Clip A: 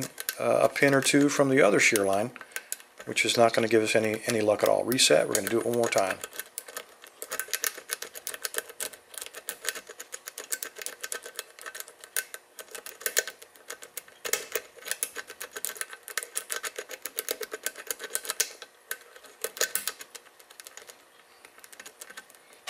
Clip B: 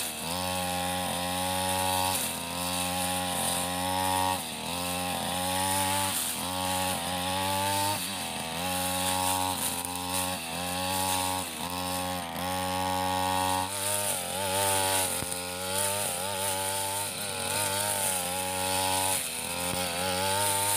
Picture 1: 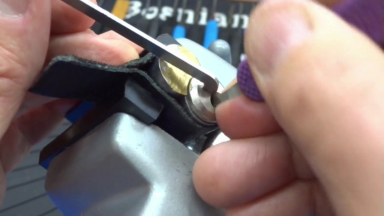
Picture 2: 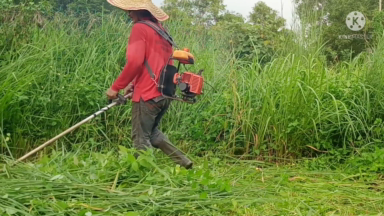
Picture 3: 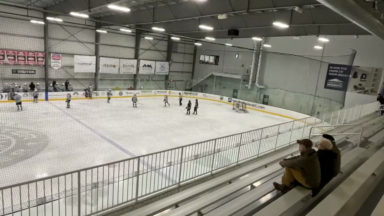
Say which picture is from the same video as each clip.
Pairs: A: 1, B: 2